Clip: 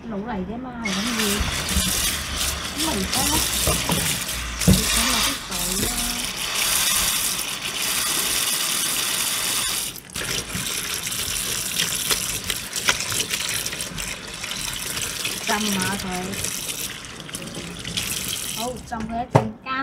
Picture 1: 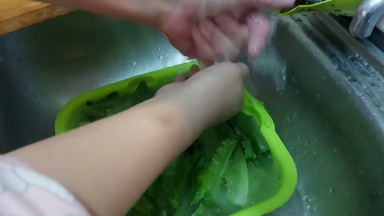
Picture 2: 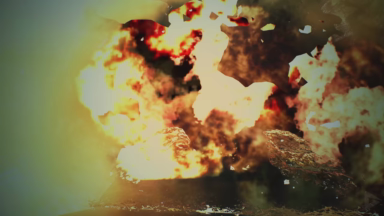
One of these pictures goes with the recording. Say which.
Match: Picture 1